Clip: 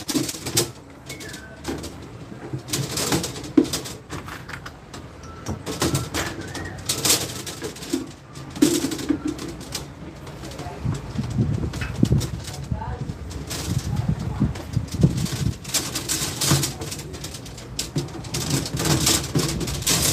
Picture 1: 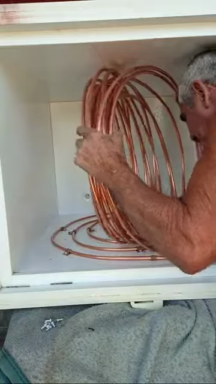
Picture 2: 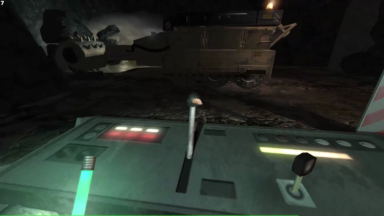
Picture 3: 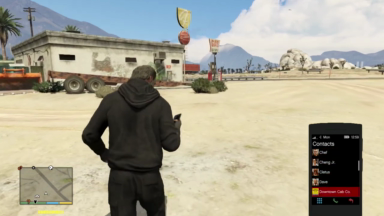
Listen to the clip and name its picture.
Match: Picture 1